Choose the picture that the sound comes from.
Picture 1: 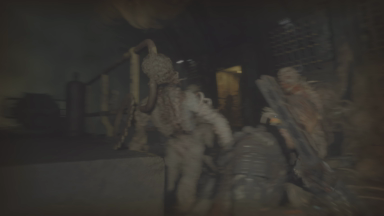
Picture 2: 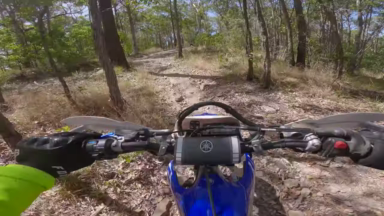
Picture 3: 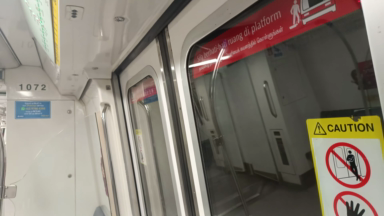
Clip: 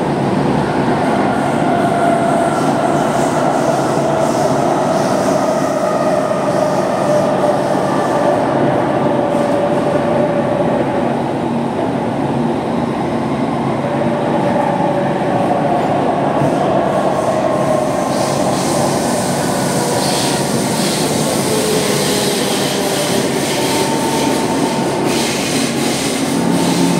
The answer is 3